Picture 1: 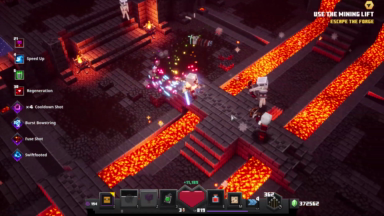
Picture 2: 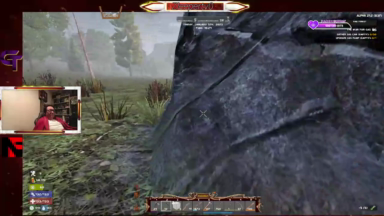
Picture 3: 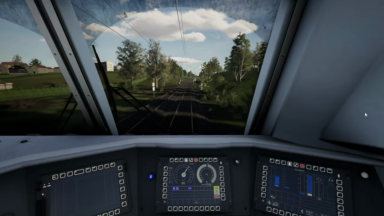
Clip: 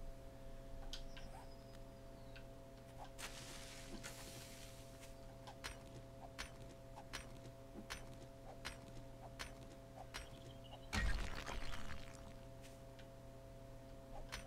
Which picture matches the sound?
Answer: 2